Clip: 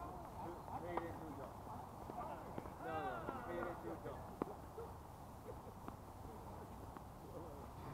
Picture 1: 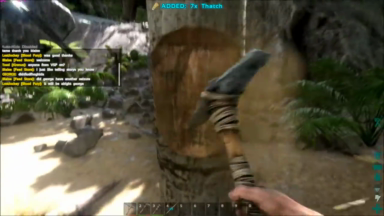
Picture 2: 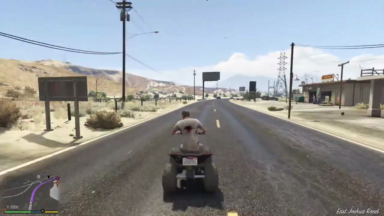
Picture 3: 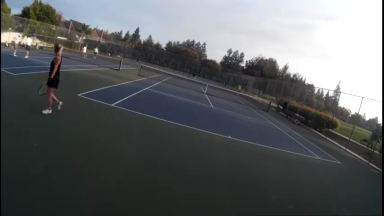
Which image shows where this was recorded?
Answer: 3